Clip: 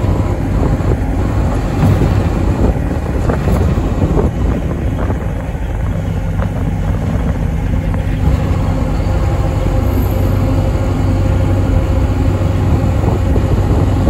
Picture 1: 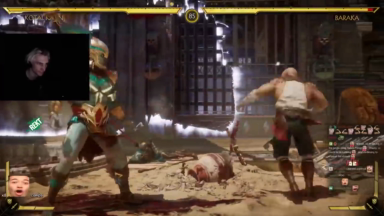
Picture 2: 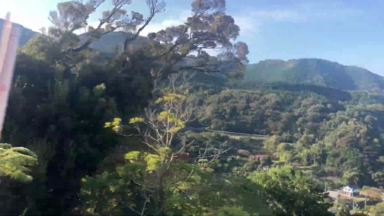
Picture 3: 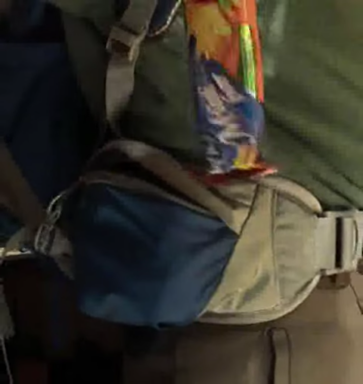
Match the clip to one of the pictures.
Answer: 2